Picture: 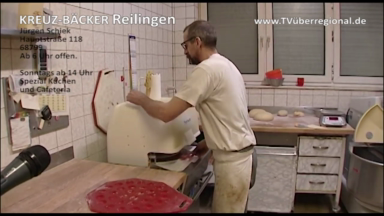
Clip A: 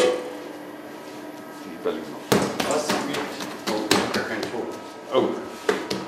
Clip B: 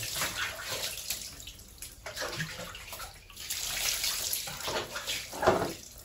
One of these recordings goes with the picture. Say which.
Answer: A